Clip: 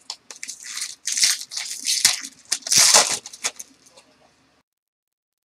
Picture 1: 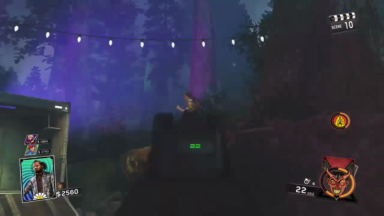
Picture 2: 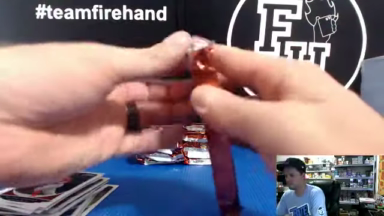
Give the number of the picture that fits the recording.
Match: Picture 2